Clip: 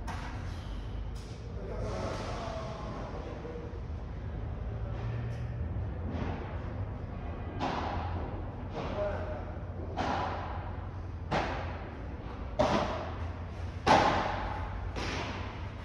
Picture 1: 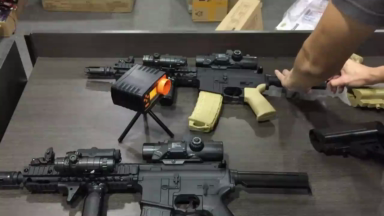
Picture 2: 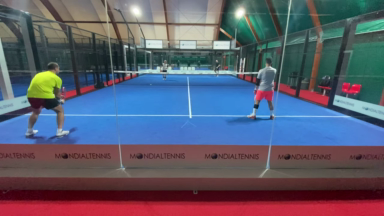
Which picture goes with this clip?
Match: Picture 2